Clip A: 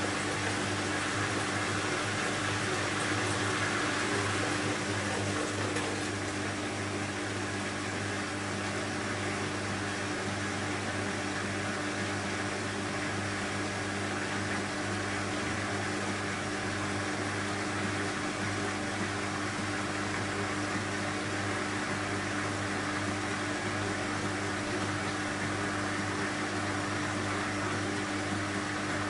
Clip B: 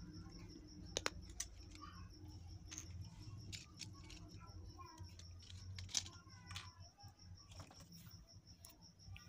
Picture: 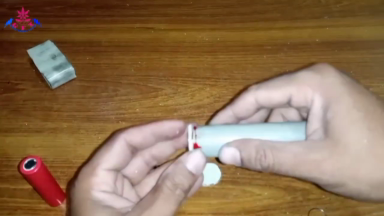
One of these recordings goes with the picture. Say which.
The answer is B